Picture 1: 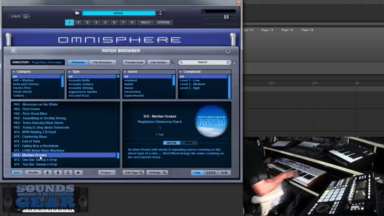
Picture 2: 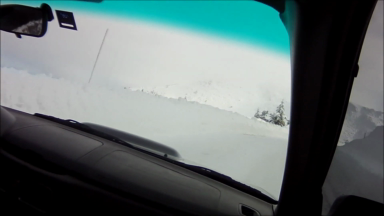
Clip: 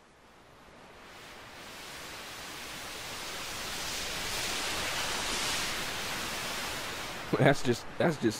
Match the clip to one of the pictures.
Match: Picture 1